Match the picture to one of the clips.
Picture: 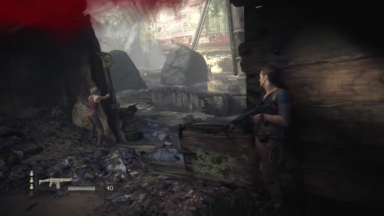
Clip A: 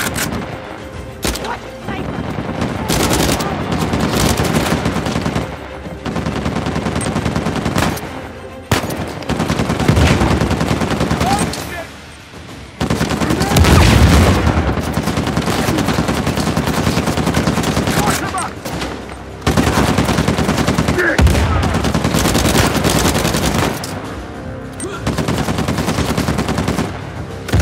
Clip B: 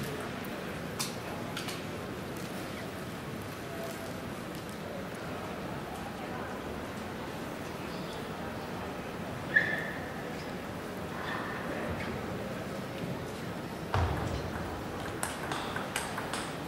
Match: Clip A